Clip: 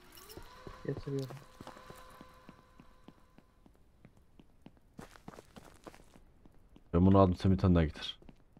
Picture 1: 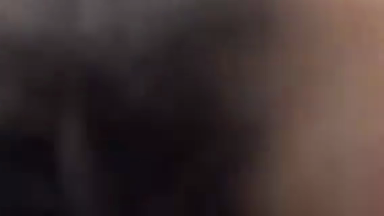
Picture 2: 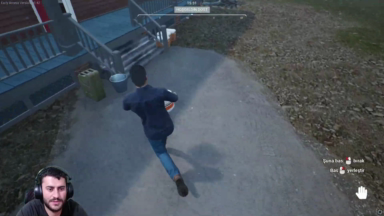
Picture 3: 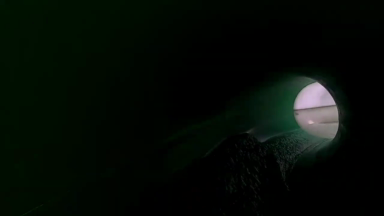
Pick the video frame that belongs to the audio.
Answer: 2